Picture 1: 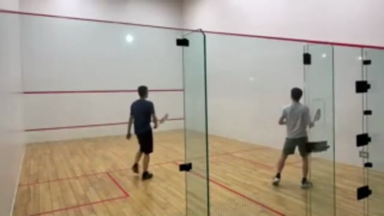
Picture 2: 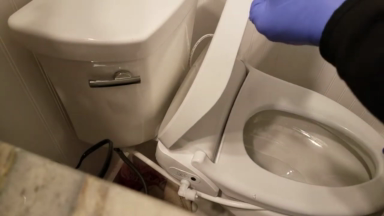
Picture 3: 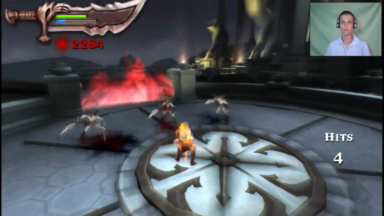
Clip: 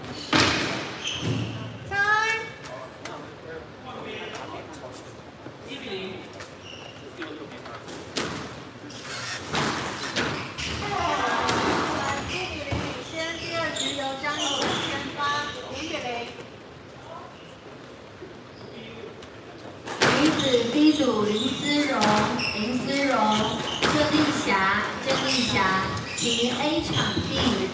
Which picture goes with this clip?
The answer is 1